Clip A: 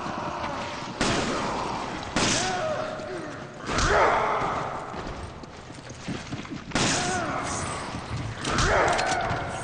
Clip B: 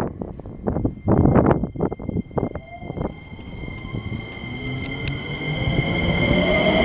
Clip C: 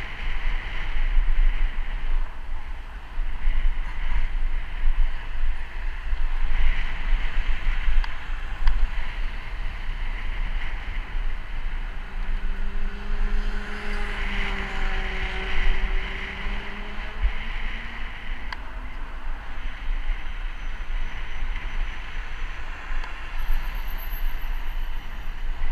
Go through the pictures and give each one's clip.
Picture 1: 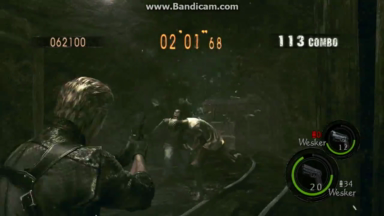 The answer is A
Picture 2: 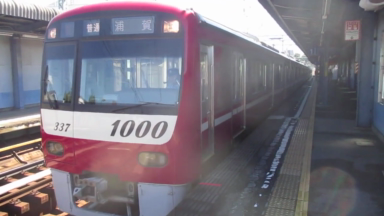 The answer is B